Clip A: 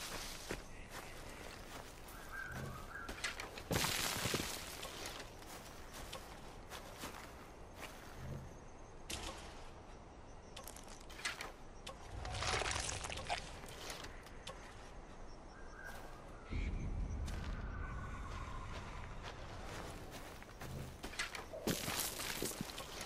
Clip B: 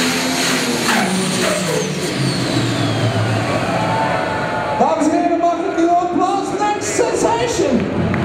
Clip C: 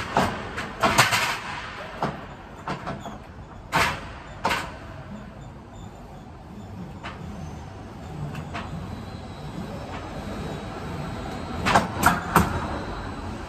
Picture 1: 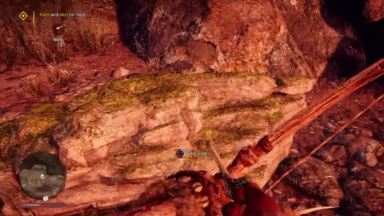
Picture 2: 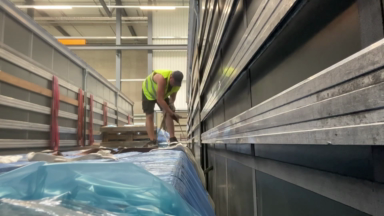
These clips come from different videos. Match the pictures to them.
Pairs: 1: A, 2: C